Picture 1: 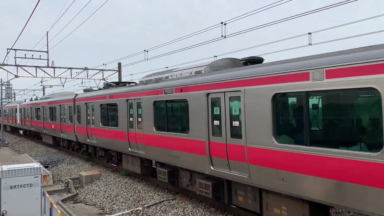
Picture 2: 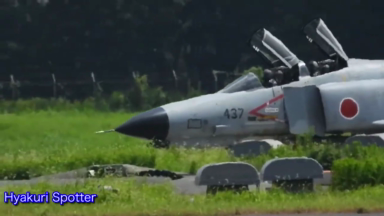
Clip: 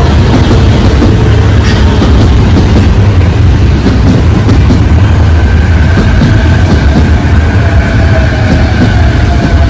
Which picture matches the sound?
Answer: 1